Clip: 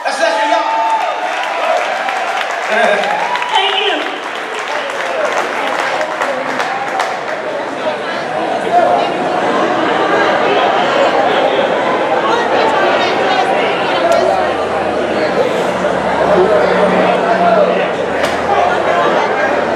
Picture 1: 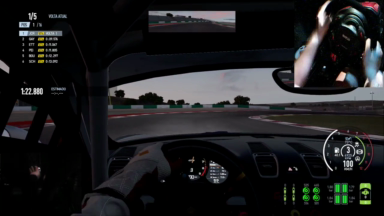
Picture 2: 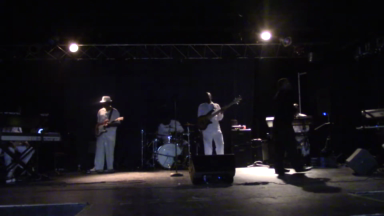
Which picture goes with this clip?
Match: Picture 2